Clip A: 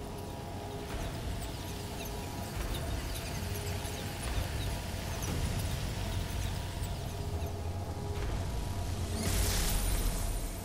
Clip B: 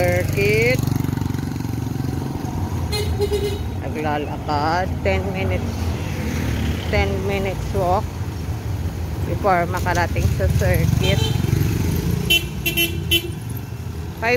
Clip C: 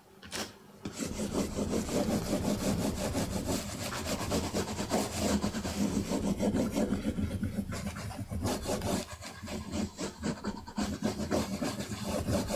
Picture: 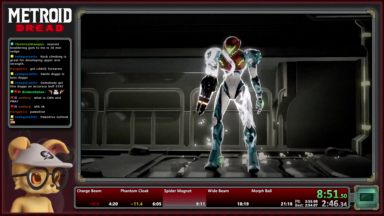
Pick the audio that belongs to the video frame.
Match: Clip A